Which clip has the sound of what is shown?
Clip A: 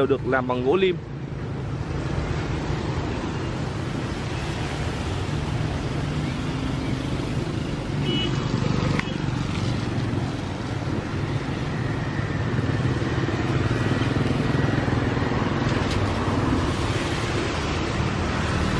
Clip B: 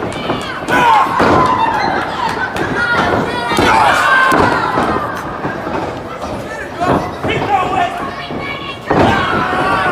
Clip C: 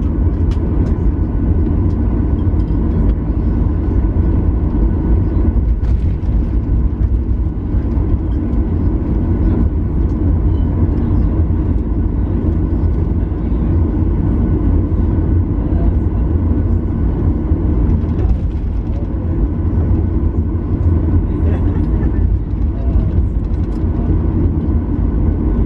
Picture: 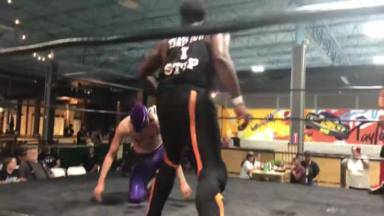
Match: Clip B